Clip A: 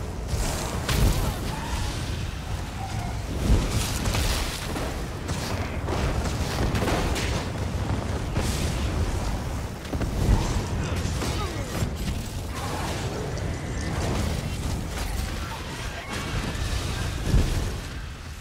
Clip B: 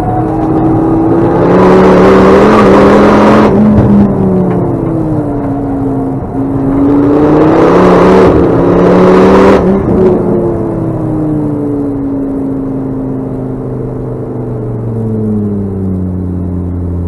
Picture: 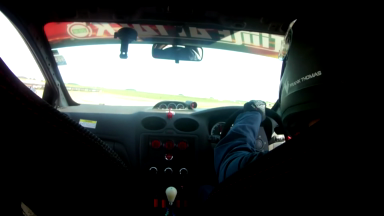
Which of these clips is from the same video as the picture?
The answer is B